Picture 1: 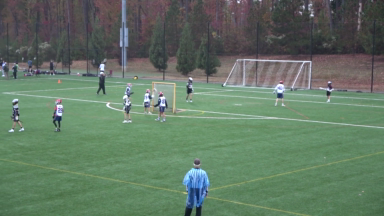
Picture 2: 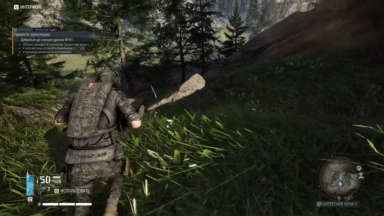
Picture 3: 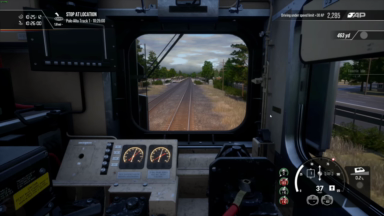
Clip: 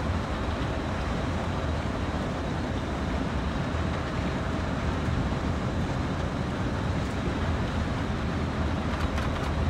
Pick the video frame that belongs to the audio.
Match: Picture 3